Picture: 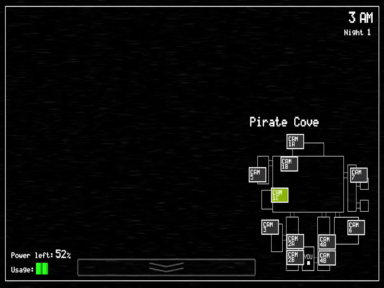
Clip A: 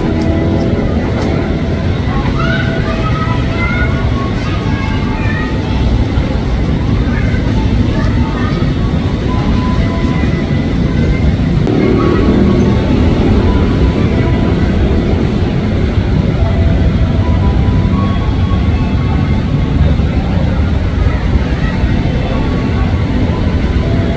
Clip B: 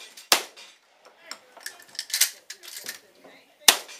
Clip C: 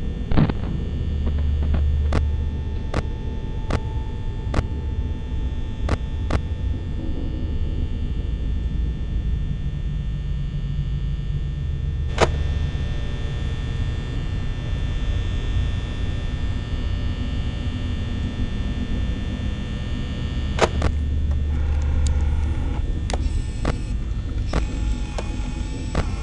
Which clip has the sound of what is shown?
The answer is C